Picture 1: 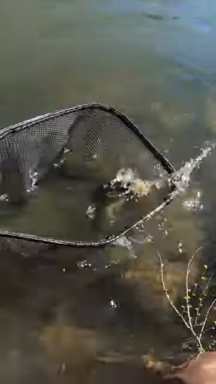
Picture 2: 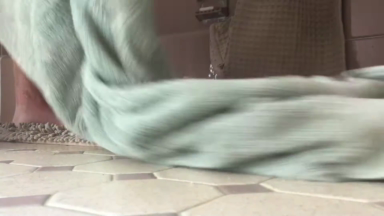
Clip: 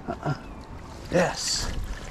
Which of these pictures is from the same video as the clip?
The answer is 1